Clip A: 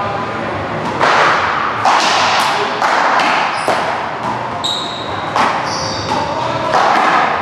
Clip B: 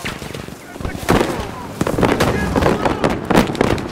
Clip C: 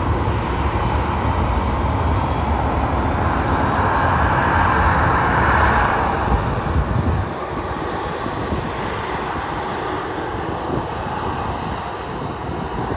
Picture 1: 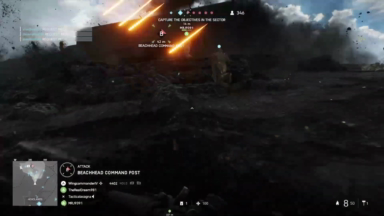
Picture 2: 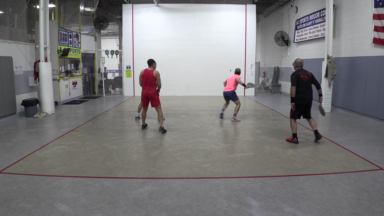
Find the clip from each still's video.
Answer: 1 B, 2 A